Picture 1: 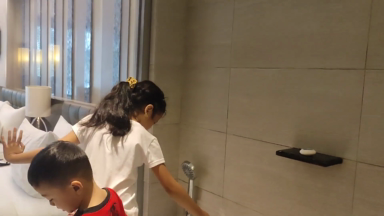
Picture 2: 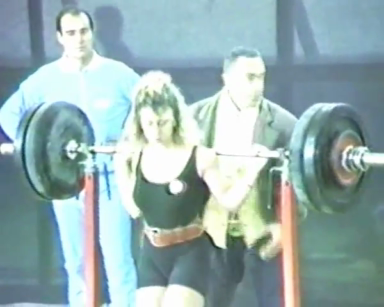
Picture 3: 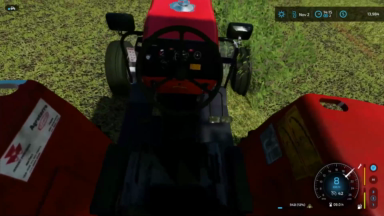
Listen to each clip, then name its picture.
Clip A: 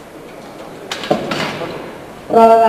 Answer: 2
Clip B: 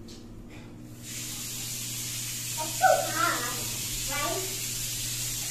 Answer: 1